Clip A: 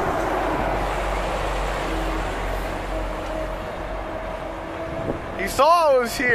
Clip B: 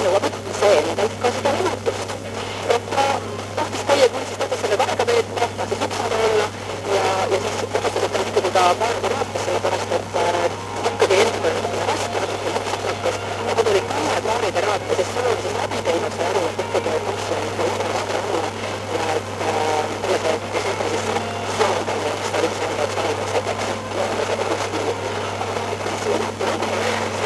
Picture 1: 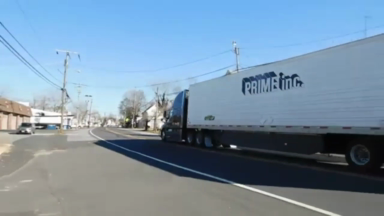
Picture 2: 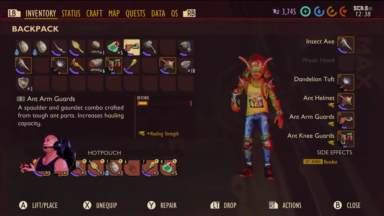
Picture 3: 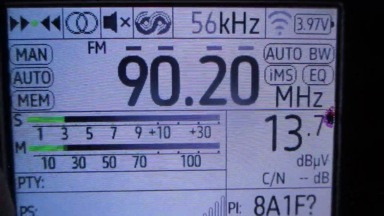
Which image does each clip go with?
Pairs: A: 1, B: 3